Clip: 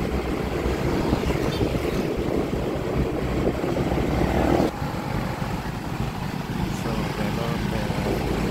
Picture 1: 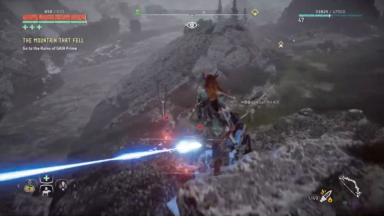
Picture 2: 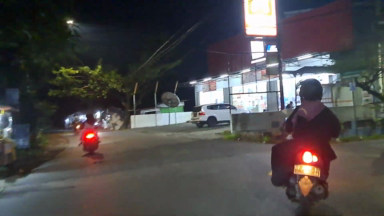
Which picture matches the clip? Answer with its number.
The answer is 2